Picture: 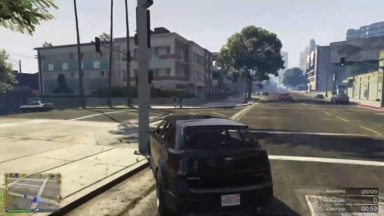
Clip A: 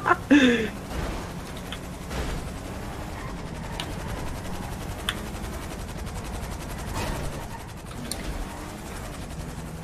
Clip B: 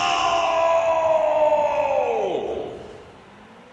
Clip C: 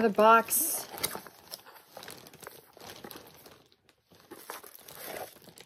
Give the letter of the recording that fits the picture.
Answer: A